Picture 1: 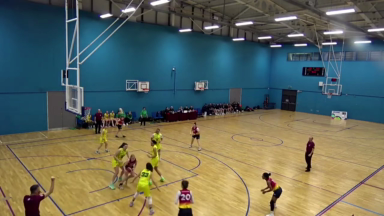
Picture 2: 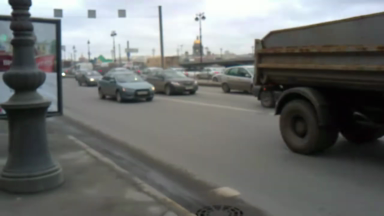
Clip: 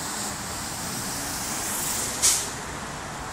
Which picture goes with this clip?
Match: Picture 2